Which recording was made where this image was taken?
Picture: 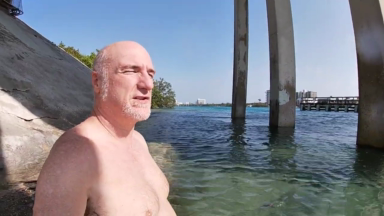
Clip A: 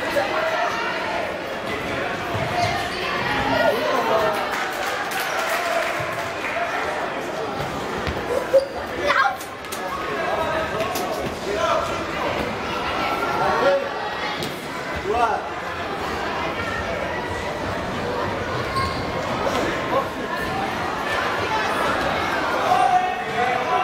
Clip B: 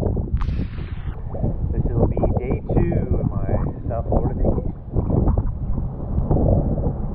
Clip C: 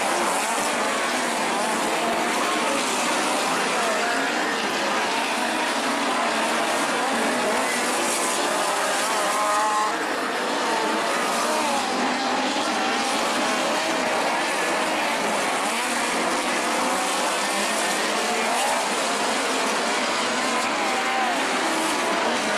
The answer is B